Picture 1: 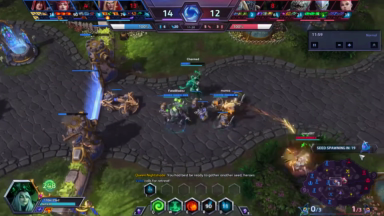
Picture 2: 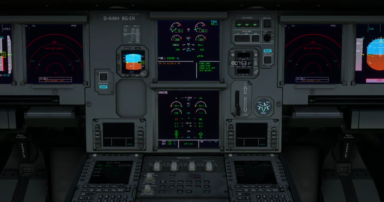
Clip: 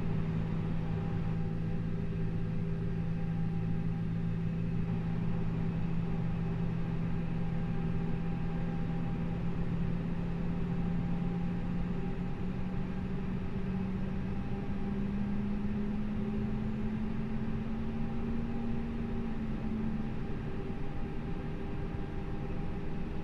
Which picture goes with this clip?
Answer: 2